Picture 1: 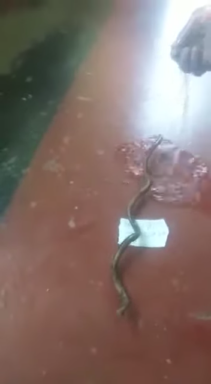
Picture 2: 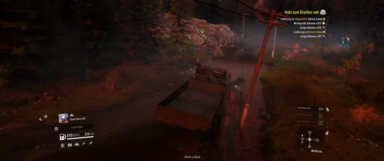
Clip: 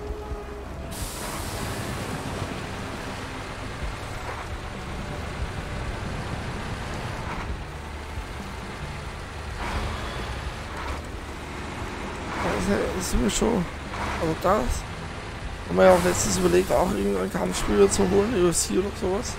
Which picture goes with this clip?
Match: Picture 2